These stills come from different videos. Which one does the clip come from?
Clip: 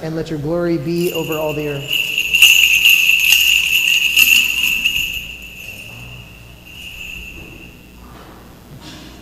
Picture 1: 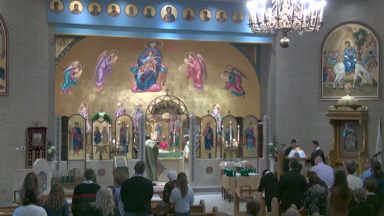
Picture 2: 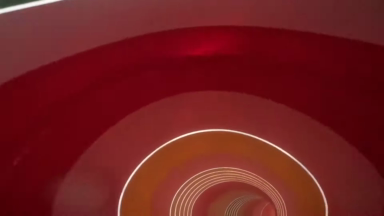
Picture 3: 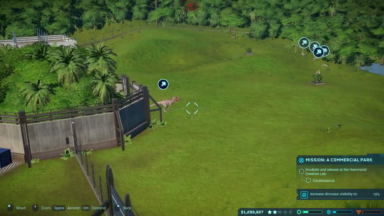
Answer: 1